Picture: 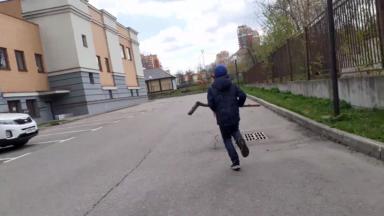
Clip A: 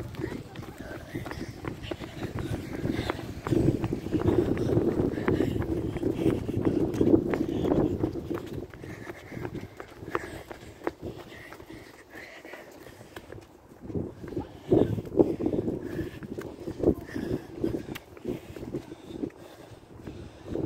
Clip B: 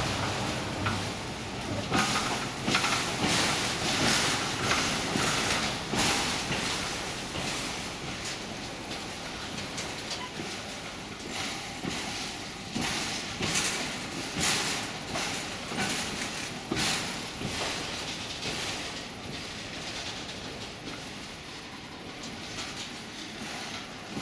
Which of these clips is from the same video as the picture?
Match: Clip A